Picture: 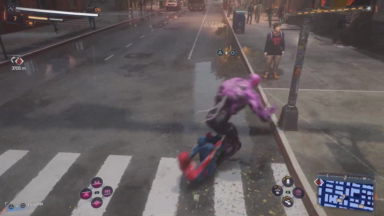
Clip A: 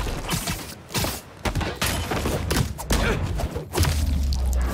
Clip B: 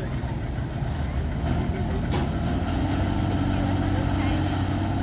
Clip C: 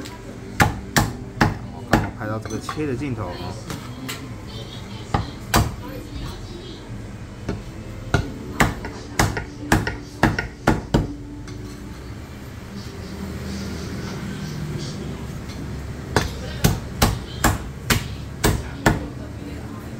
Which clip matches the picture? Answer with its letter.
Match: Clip A